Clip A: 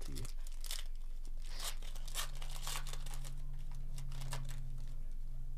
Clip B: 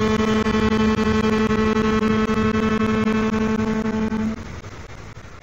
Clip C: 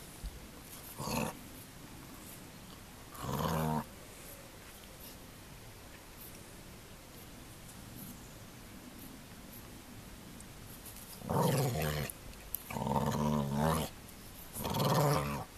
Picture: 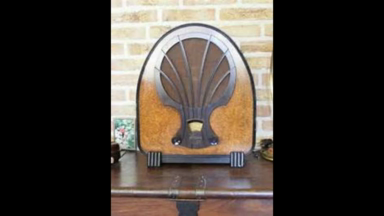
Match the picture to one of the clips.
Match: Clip B